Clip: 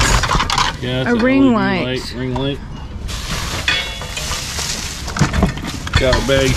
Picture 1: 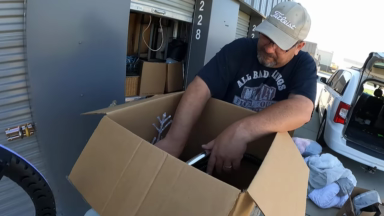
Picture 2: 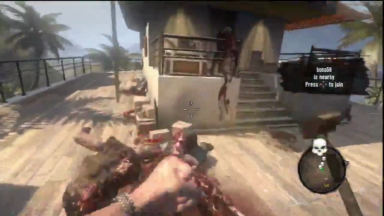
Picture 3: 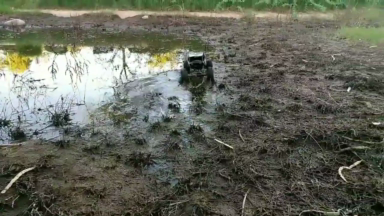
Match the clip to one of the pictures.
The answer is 1